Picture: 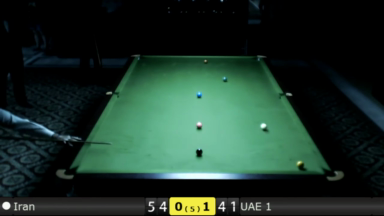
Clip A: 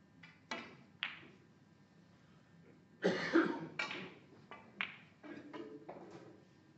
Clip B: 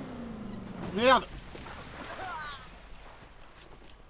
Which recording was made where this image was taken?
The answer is A